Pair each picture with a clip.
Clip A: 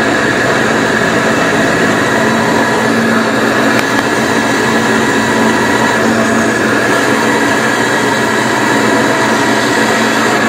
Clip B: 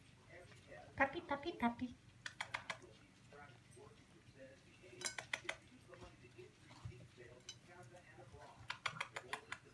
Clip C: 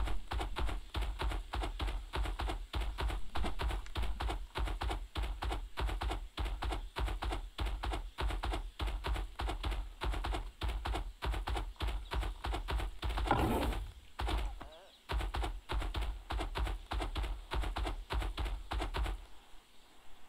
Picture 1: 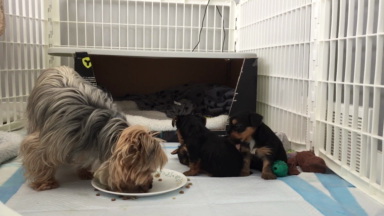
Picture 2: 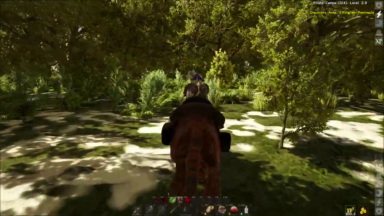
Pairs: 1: B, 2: C